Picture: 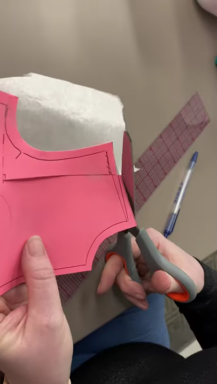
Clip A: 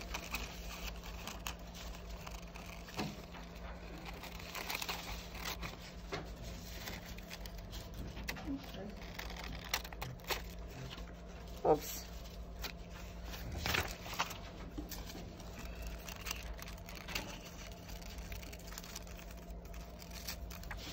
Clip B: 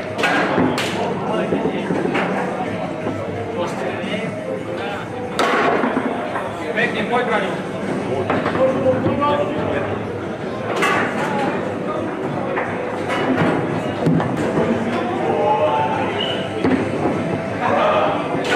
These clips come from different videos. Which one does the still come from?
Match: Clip A